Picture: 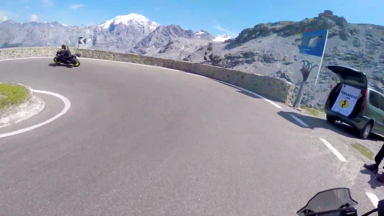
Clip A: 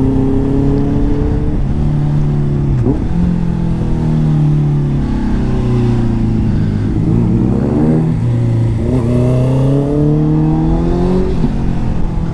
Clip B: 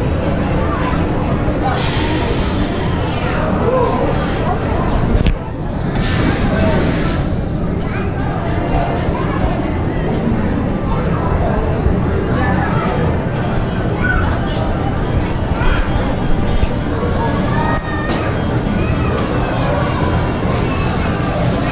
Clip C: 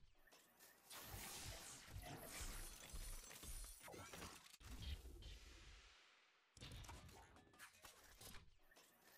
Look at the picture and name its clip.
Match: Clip A